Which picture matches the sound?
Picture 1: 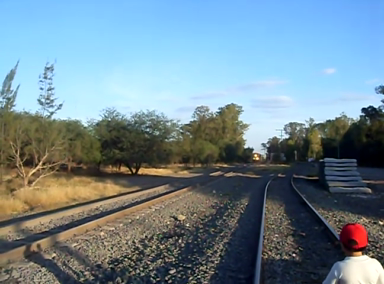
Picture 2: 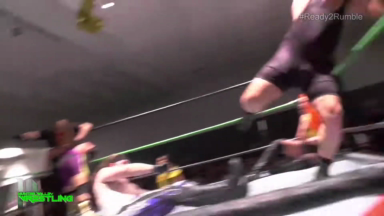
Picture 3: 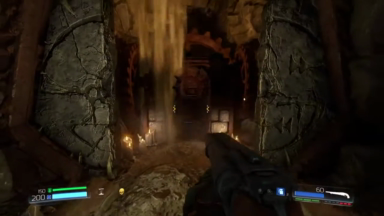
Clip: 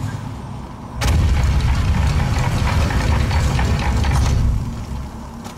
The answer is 3